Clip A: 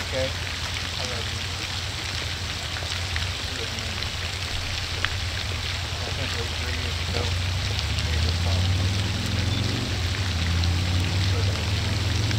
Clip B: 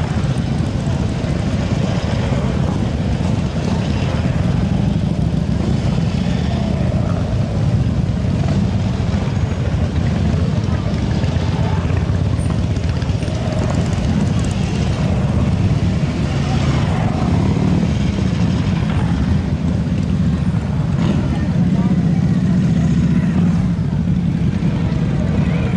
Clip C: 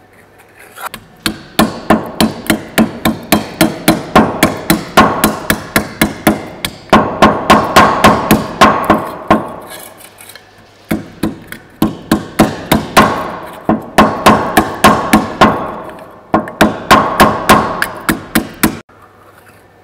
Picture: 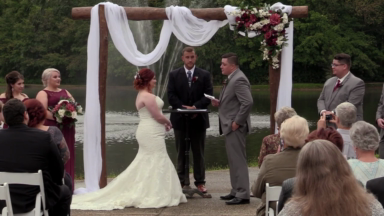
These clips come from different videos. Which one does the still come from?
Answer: A